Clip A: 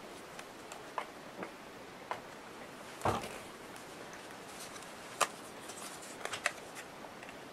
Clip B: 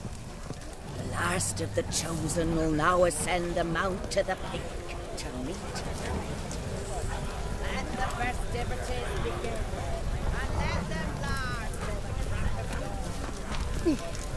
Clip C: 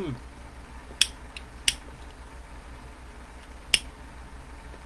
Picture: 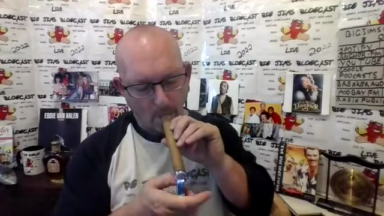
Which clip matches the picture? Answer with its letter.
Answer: C